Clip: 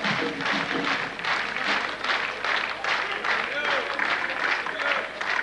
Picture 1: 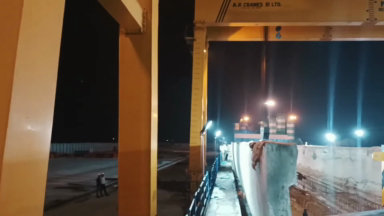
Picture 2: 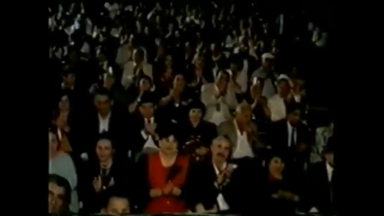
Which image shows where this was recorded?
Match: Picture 2